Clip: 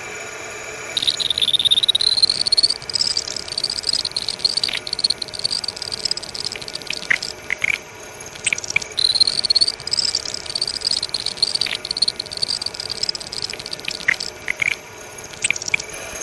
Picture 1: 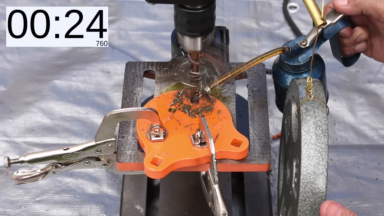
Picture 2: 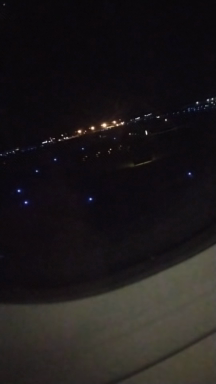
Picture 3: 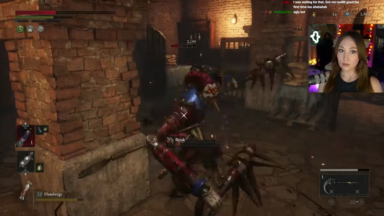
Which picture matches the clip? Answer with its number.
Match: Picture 1